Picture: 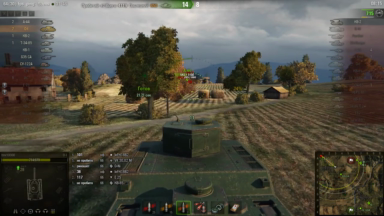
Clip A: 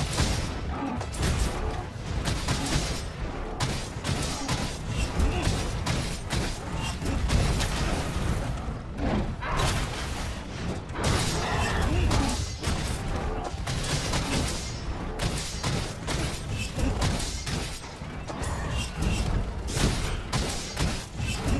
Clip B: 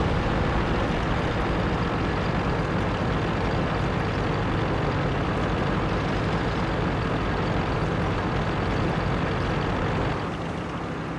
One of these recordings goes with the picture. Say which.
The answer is B